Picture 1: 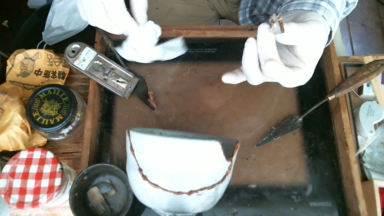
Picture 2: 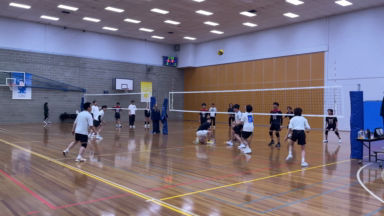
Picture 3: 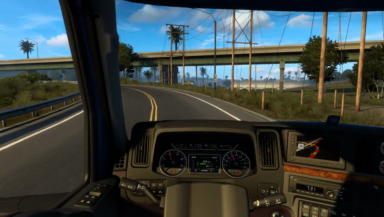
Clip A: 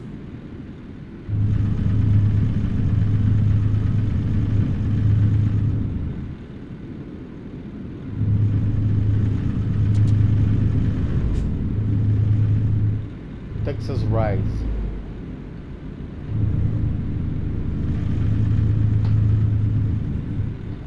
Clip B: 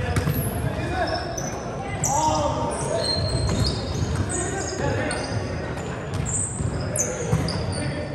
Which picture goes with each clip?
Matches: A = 3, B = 2